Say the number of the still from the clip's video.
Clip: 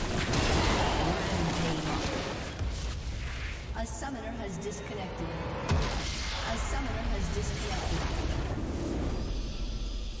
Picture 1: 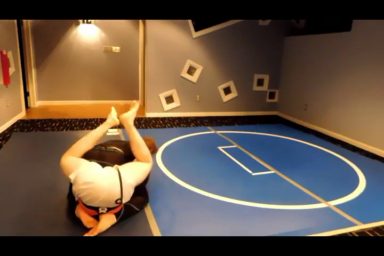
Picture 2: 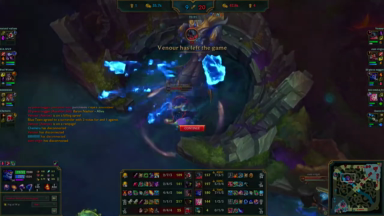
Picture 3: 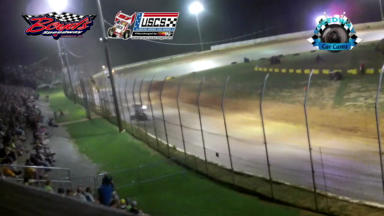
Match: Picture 2